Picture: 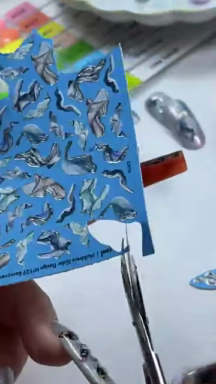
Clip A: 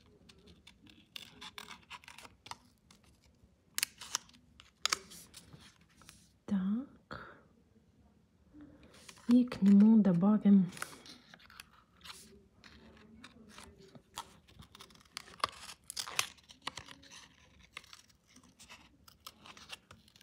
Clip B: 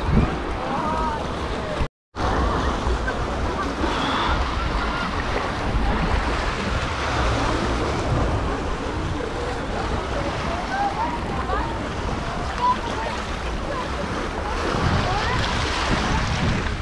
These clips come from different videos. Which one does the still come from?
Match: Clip A